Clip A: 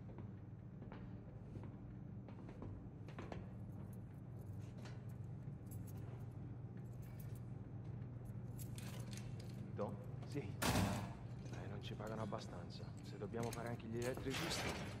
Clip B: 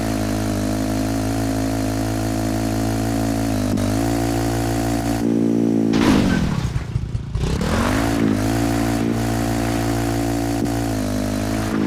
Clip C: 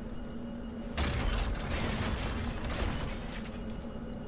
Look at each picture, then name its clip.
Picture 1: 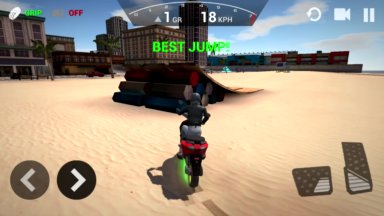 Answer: B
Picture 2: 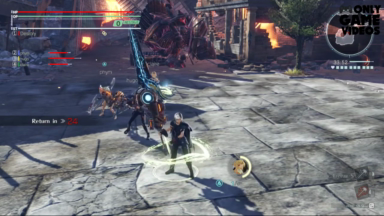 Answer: C